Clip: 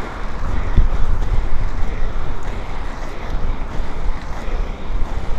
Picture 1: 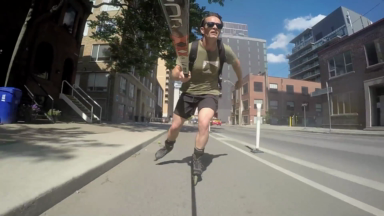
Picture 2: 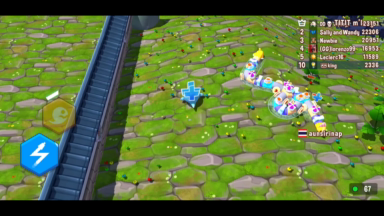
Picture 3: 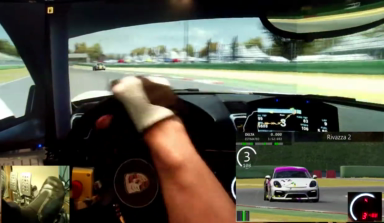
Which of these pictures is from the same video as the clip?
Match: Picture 1